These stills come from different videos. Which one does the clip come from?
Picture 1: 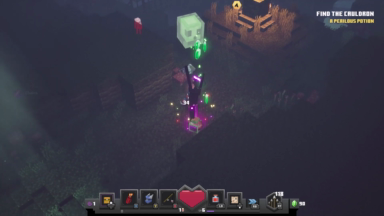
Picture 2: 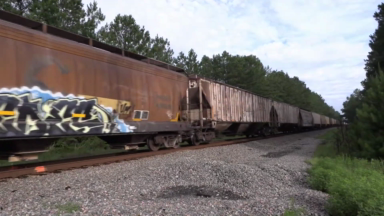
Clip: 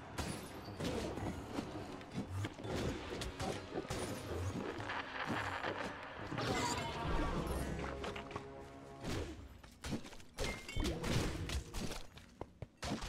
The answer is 1